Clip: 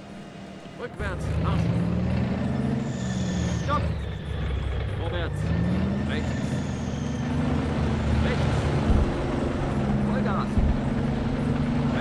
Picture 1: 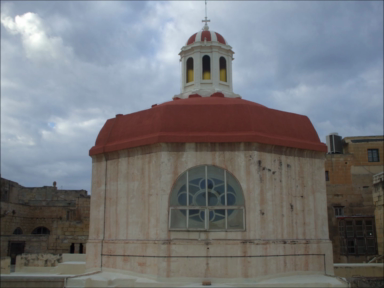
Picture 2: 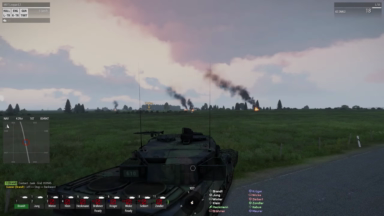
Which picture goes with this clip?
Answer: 2